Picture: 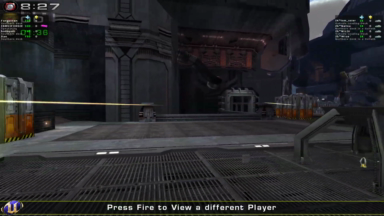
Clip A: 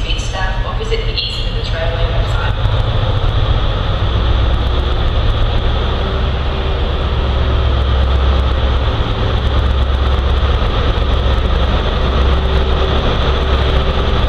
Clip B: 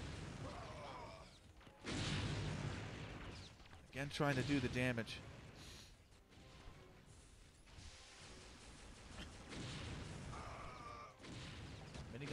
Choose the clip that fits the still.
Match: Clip B